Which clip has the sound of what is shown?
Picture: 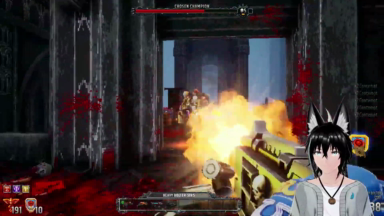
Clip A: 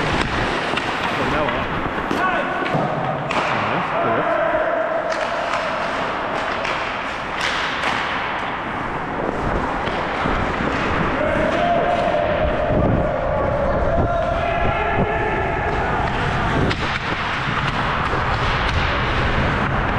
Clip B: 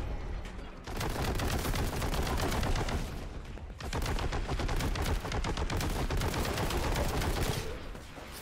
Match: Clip B